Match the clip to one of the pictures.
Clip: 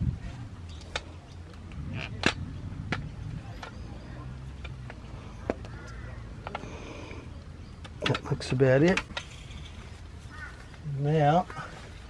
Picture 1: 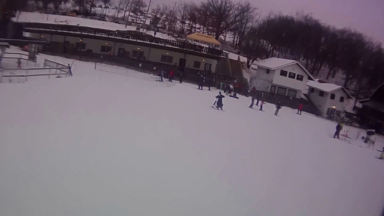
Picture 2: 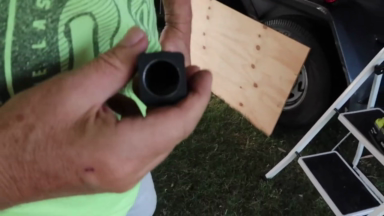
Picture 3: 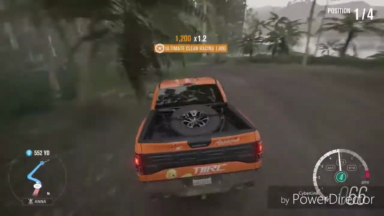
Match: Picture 2